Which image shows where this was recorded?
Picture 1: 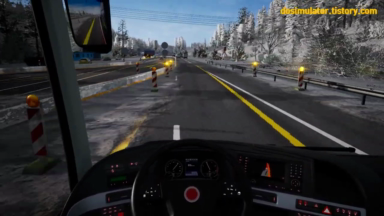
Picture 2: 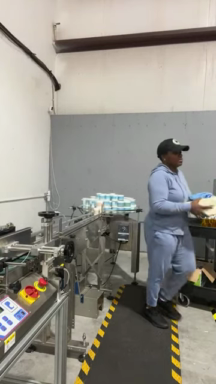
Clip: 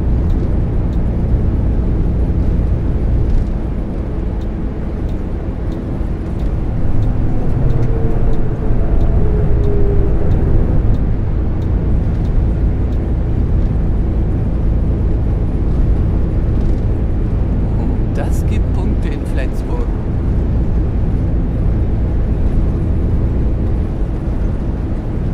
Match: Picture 1